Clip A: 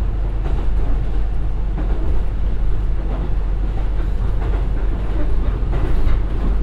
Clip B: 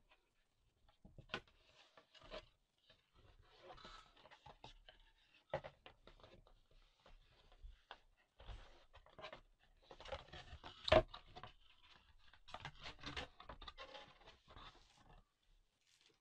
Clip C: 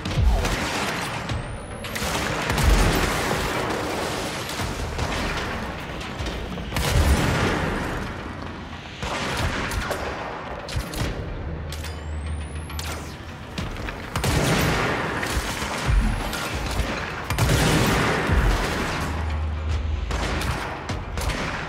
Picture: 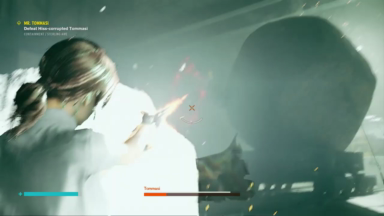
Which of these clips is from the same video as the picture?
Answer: C